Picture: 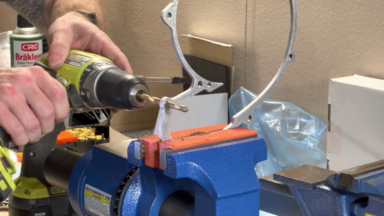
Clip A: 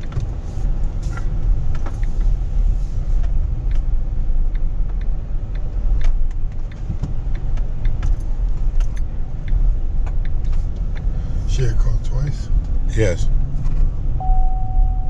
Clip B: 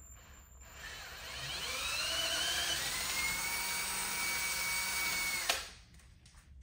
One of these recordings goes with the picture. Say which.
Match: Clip B